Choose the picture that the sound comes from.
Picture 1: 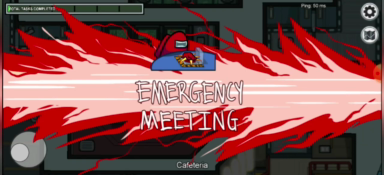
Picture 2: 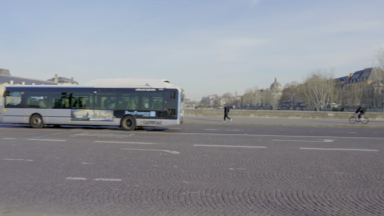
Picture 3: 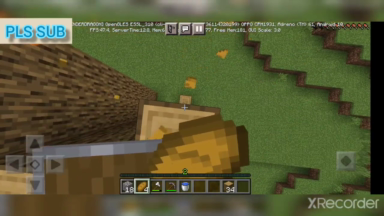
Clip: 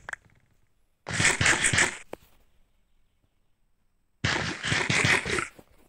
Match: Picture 3